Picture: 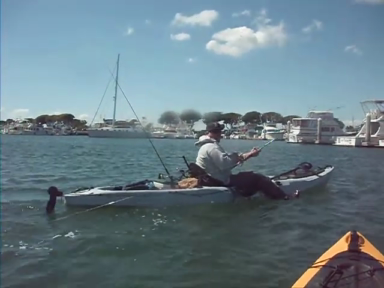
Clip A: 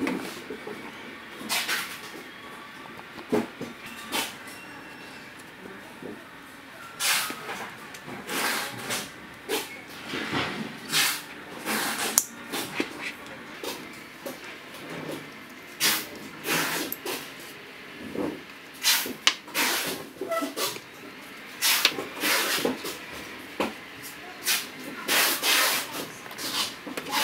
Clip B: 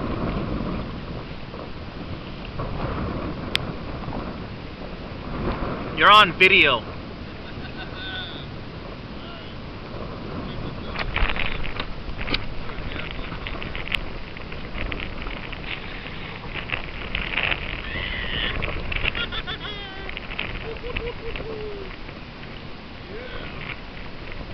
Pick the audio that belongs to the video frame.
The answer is B